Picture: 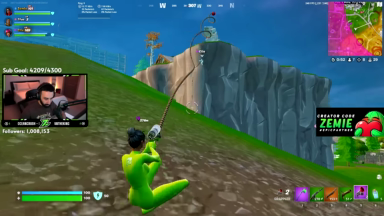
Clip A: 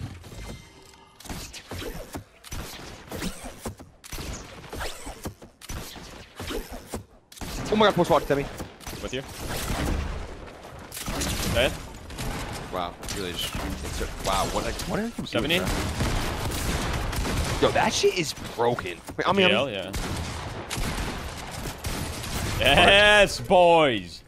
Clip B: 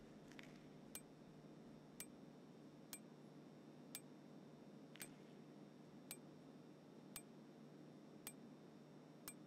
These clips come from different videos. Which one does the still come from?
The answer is A